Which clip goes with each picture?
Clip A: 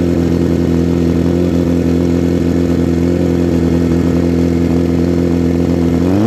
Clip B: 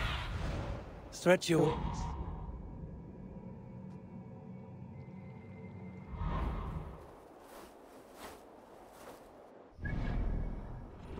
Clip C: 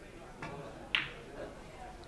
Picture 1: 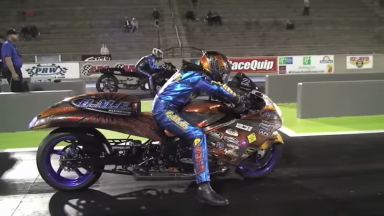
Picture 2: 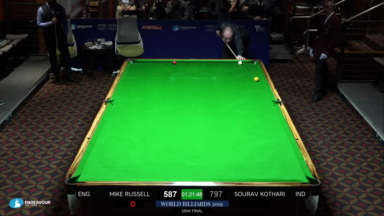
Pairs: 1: A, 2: C